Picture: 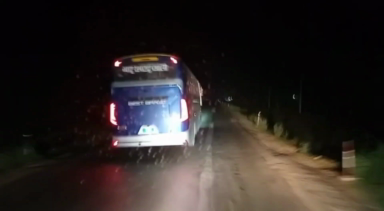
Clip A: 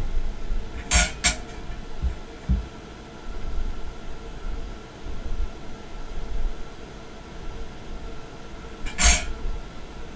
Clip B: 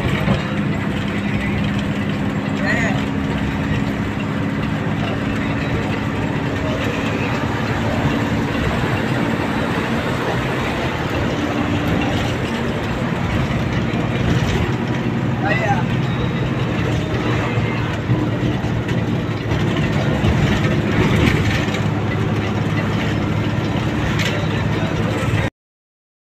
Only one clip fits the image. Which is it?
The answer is B